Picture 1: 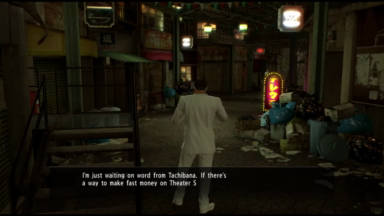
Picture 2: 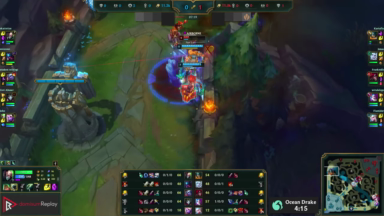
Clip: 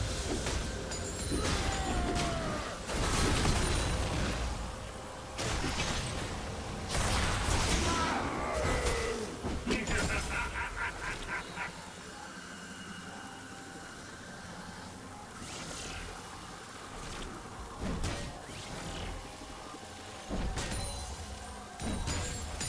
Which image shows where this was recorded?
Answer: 2